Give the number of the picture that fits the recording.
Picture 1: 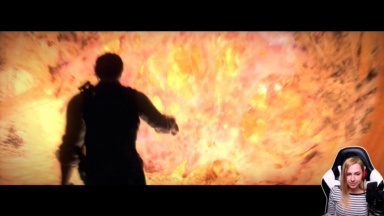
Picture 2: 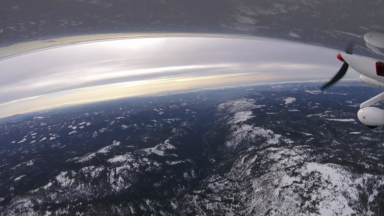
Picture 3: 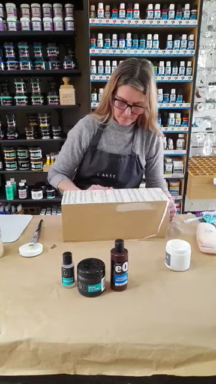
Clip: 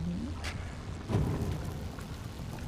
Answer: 1